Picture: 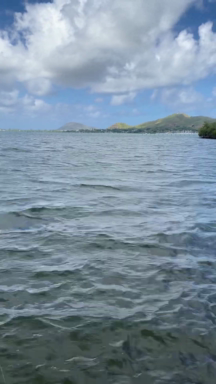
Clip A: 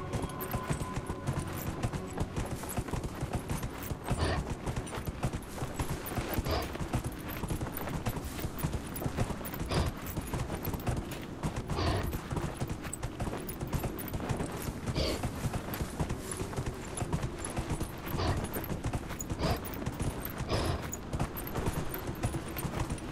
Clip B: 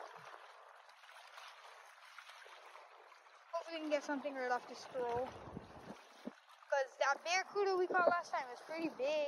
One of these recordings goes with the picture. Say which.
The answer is B